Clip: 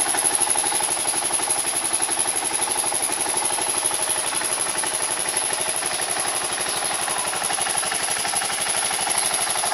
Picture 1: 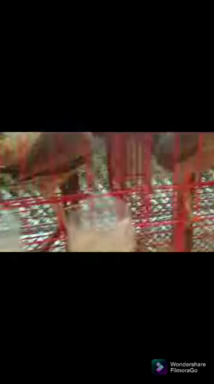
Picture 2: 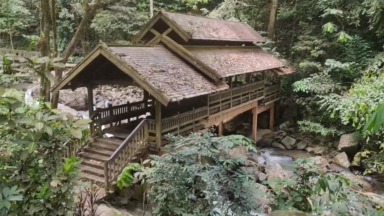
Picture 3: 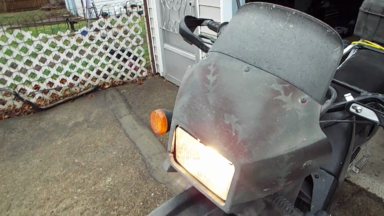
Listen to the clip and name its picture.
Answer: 3